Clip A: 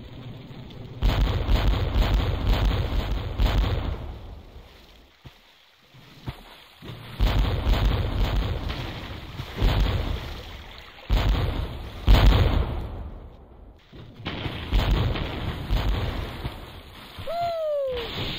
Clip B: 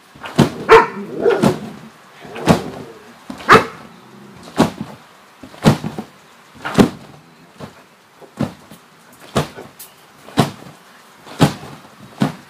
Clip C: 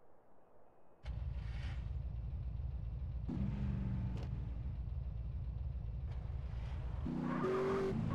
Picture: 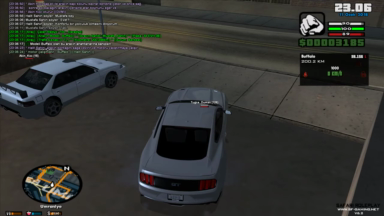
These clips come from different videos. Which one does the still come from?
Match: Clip C